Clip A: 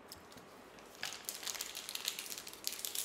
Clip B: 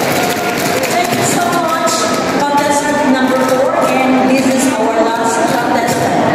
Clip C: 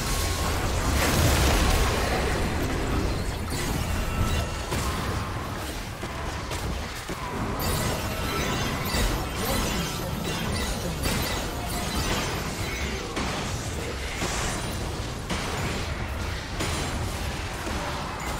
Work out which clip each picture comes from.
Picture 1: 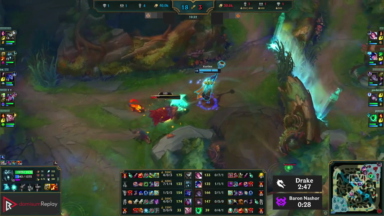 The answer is C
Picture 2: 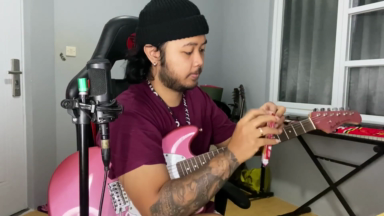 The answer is A